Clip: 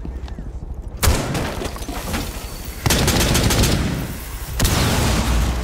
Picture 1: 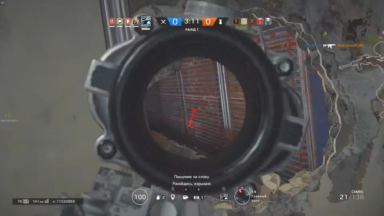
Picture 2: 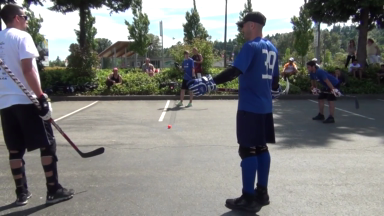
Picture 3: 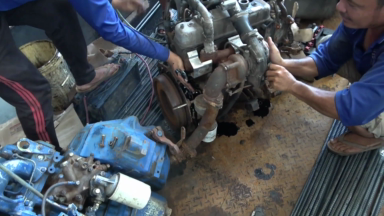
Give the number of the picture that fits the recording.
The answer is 1